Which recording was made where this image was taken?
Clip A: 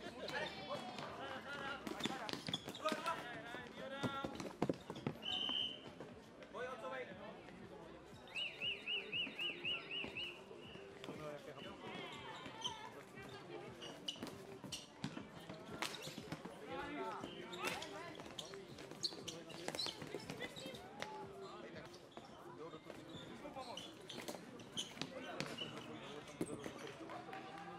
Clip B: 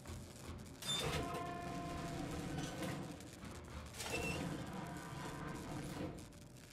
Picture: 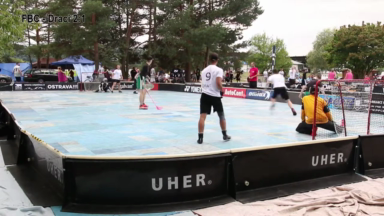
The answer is A